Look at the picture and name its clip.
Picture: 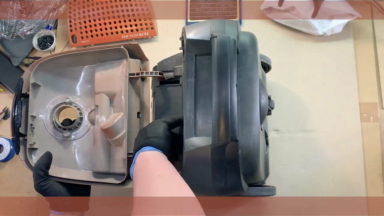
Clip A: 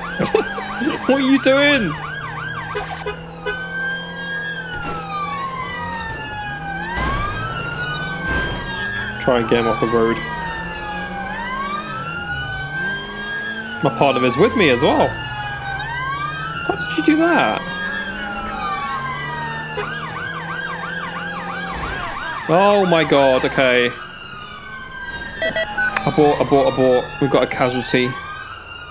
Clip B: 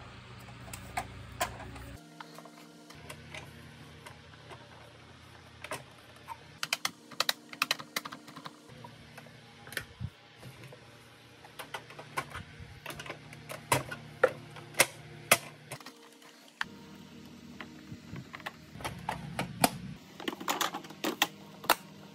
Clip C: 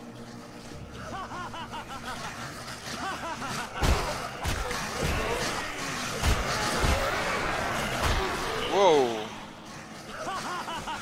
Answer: B